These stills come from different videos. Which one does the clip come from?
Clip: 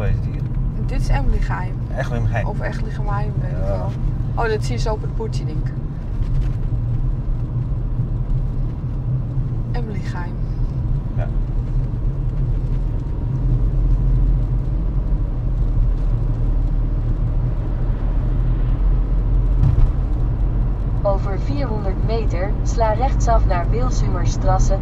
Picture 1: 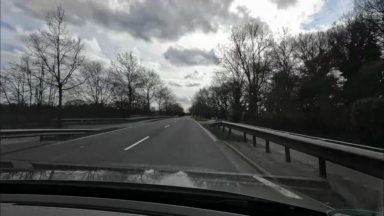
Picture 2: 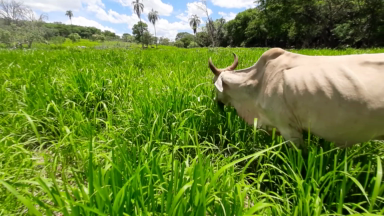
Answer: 1